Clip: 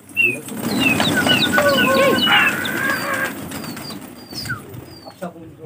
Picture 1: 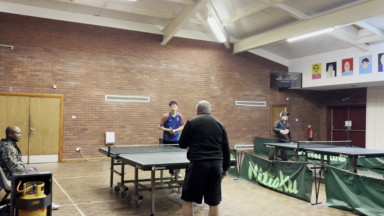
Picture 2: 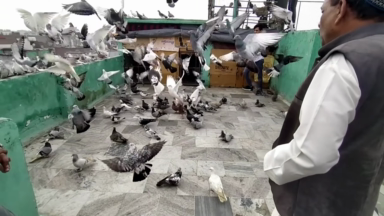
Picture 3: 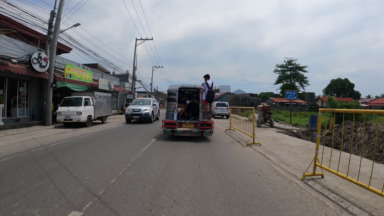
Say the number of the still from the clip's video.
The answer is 2